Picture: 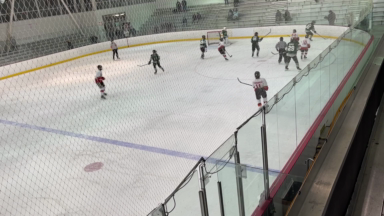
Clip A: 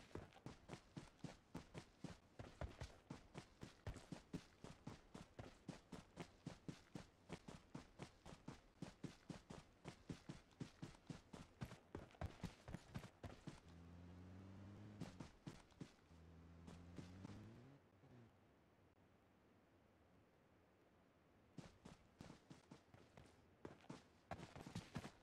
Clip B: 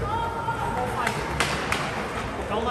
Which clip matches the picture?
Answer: B